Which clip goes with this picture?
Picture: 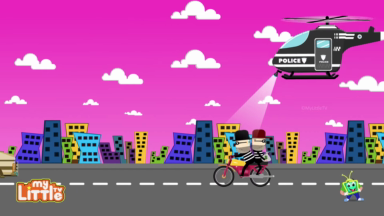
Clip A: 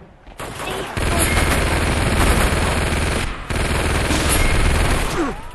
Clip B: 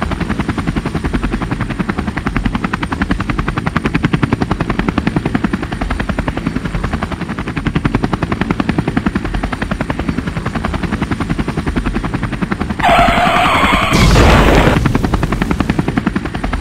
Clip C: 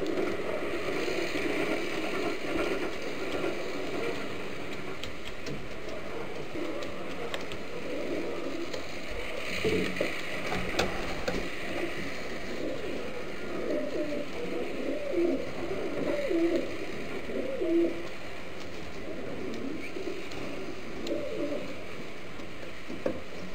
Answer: B